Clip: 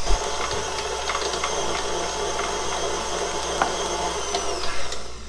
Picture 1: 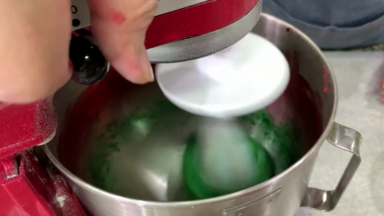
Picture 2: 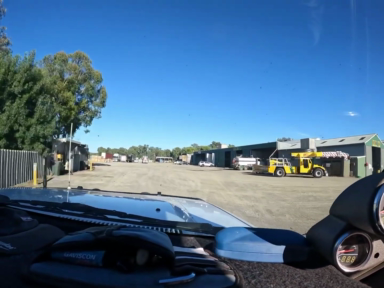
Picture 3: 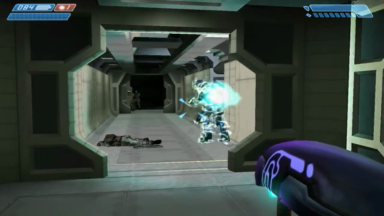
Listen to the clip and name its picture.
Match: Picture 1